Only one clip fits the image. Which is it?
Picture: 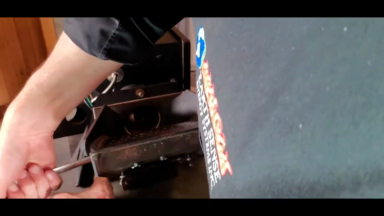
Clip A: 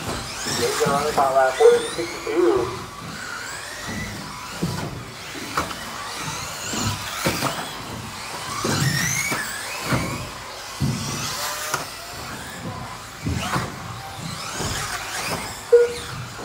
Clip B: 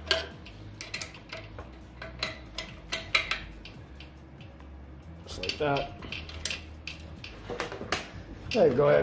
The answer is B